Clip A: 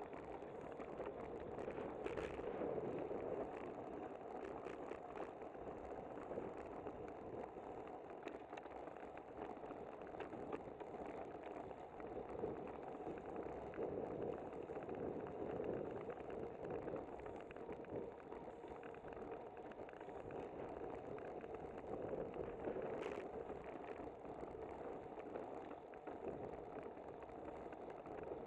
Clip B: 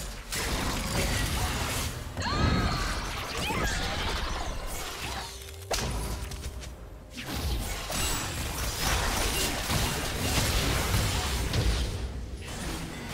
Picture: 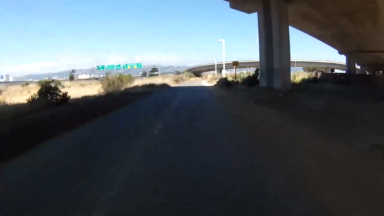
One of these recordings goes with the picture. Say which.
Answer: A